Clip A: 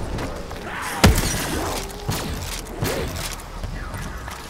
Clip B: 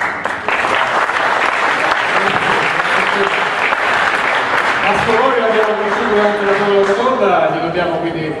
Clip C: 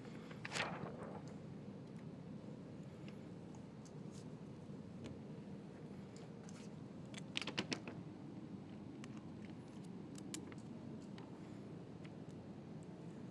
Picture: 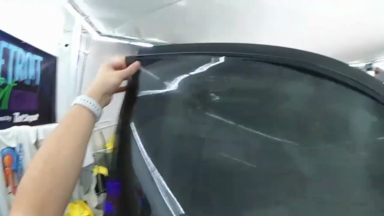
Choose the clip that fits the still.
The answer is C